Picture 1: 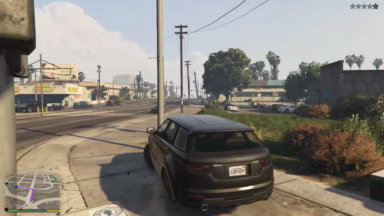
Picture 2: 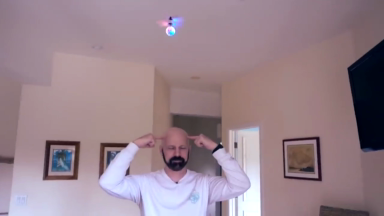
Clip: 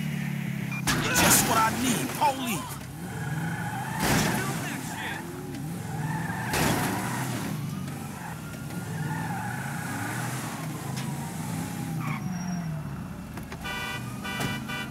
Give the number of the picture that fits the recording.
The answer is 1